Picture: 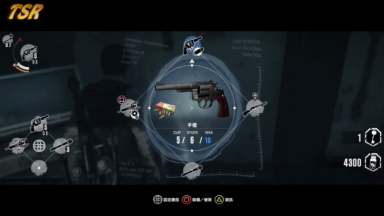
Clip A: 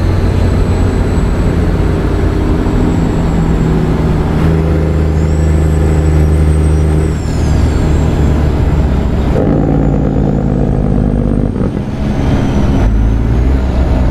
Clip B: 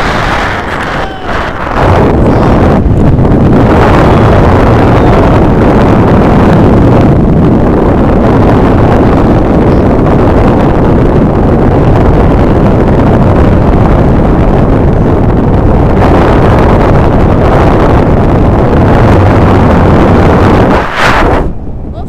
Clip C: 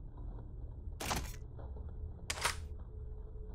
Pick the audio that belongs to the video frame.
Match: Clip C